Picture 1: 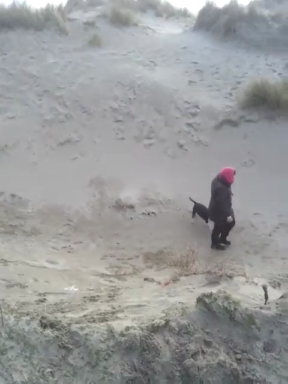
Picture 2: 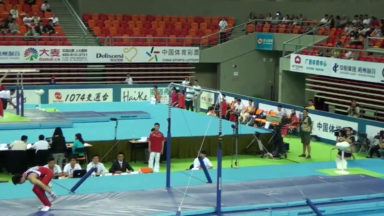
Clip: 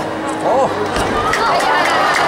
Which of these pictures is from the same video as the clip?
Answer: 2